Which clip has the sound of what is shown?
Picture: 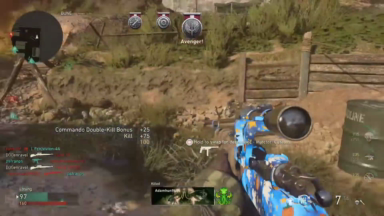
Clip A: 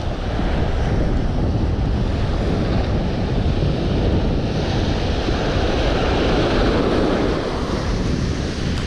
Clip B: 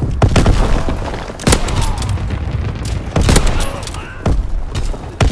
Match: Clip B